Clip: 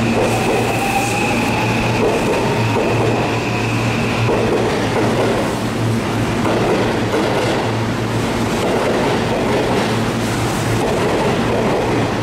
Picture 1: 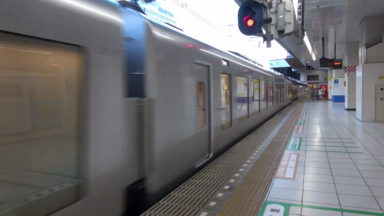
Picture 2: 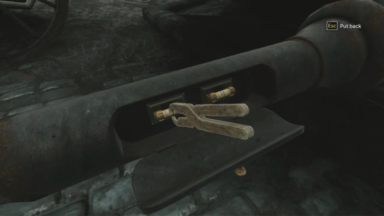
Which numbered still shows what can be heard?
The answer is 1